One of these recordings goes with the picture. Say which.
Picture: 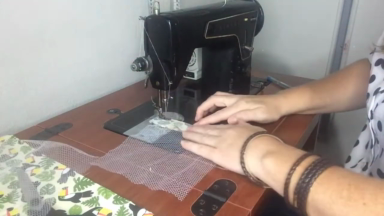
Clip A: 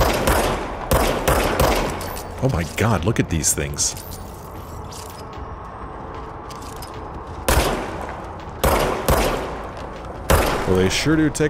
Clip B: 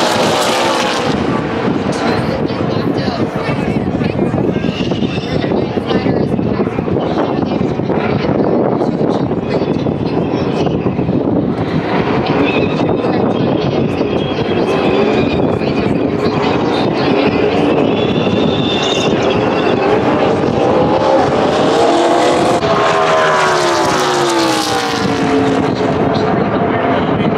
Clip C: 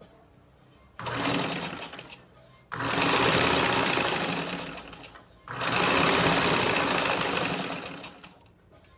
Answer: C